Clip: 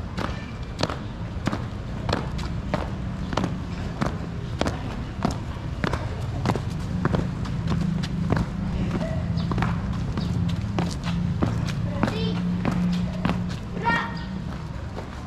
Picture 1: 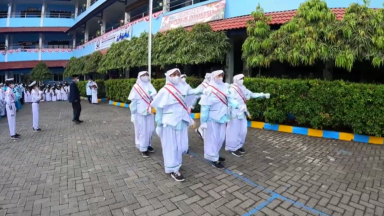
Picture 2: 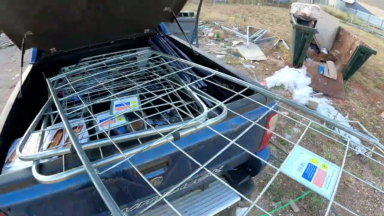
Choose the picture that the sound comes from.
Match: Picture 1